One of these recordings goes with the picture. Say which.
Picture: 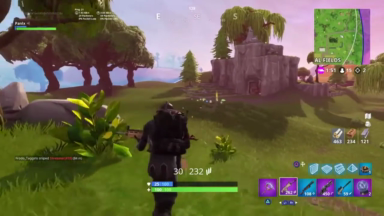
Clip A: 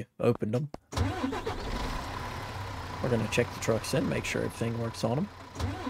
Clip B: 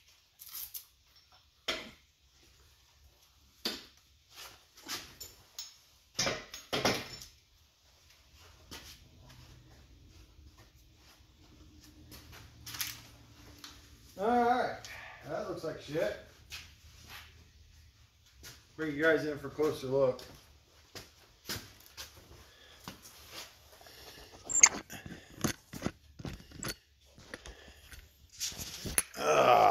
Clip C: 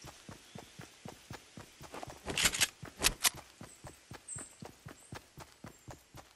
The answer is C